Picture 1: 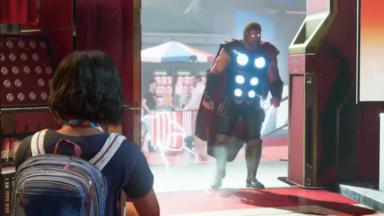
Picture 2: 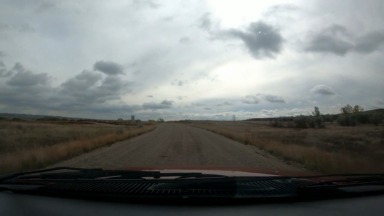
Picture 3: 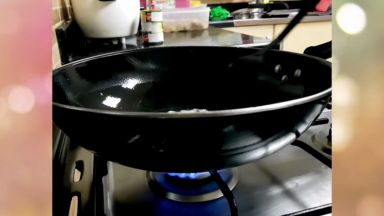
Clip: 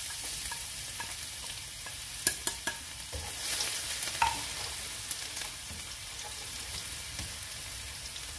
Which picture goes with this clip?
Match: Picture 3